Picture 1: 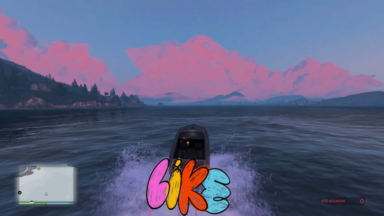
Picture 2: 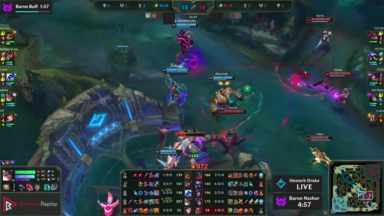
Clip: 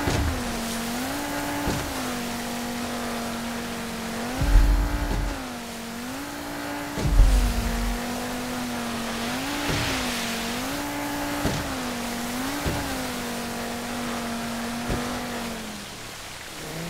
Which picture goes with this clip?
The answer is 1